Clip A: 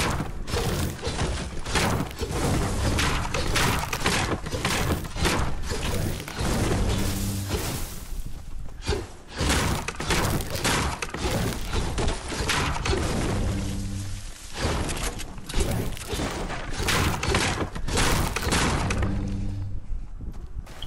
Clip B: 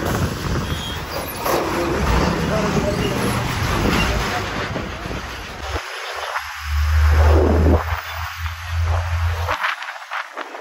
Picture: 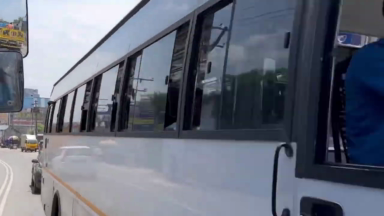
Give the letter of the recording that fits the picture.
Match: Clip B